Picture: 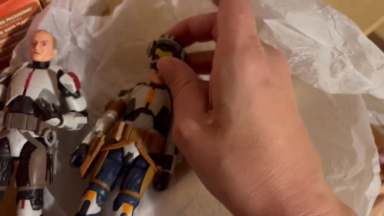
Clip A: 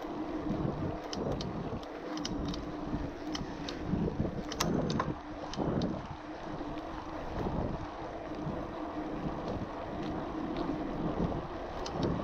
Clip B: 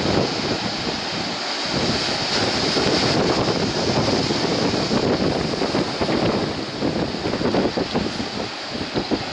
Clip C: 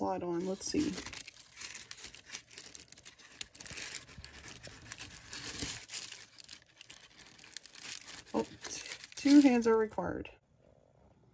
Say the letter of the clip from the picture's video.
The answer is C